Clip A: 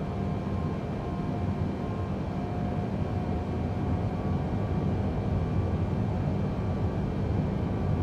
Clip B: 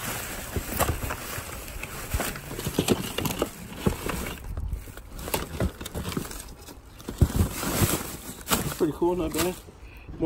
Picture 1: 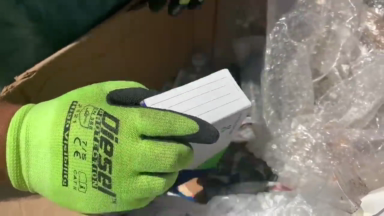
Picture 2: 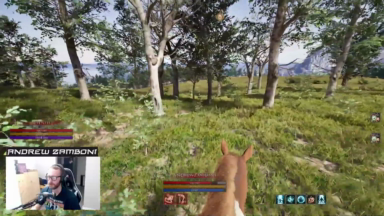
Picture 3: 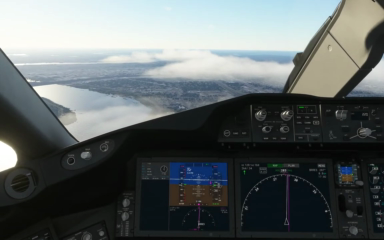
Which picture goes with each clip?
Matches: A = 3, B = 1